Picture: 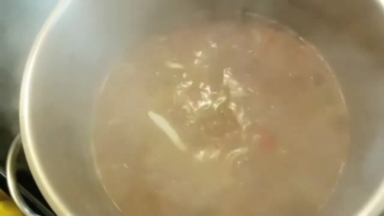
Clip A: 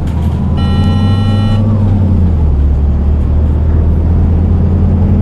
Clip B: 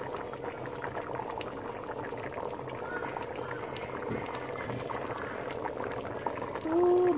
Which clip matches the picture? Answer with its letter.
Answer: B